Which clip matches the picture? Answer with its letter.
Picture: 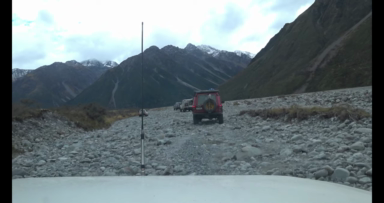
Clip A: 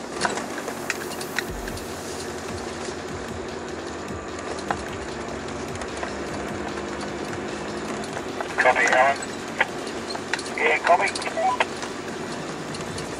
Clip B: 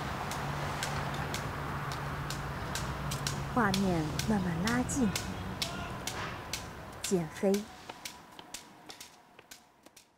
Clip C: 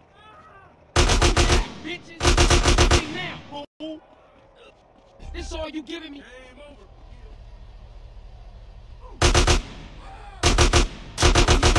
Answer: A